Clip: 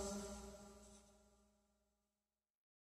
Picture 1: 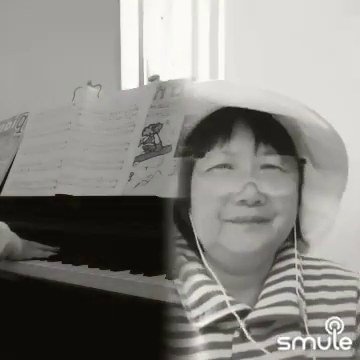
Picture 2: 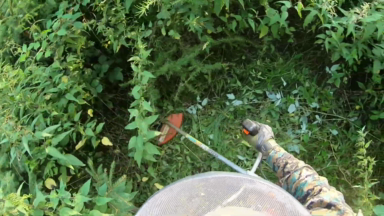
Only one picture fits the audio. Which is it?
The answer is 1